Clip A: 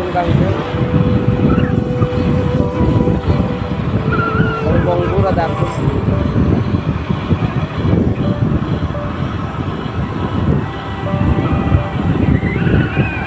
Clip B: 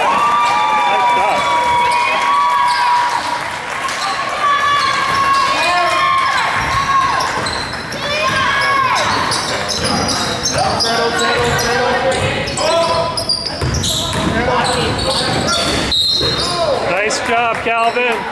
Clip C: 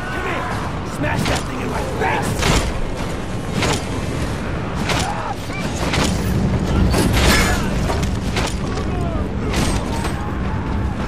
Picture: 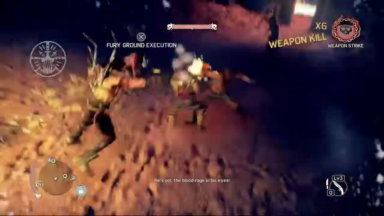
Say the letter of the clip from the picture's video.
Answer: C